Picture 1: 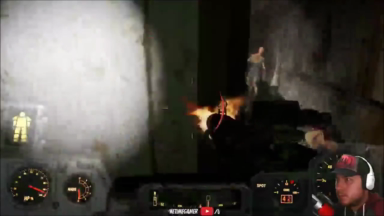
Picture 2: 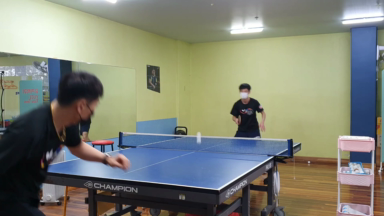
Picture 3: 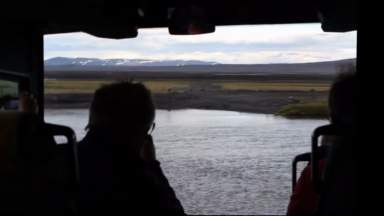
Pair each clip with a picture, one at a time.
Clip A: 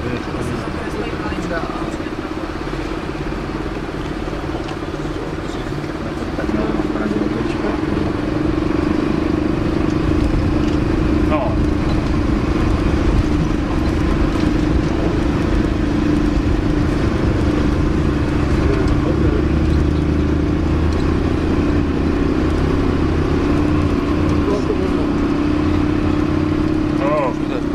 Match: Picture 3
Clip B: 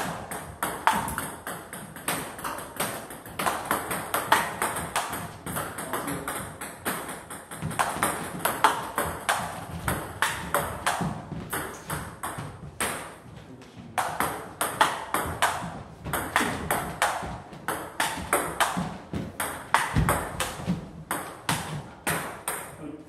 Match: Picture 2